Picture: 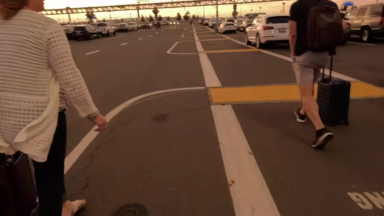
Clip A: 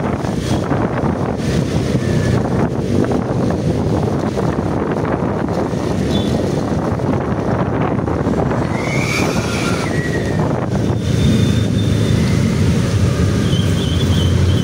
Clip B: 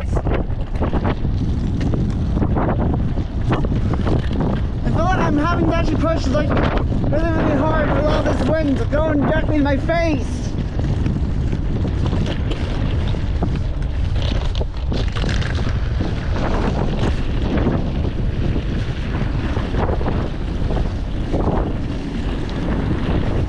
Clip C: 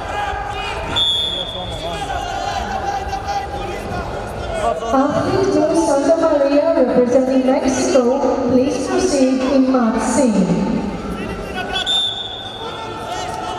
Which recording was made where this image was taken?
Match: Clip B